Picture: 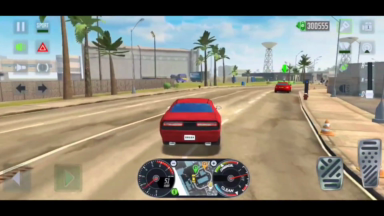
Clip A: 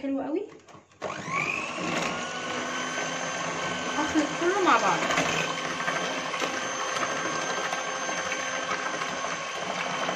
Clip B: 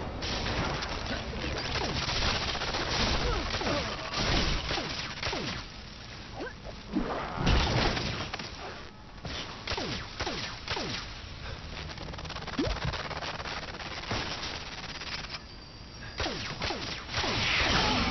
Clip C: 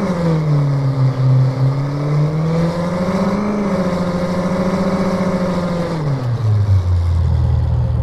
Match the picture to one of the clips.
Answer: C